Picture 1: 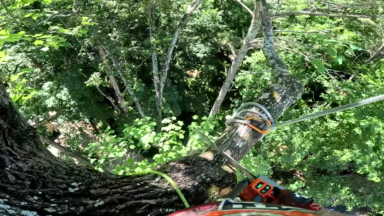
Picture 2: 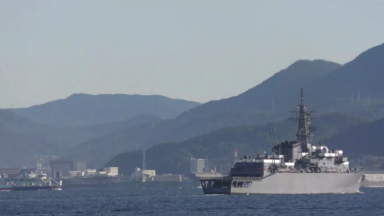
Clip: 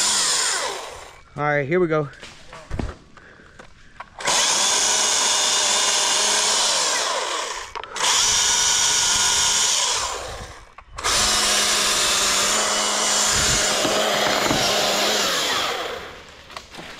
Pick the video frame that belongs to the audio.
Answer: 1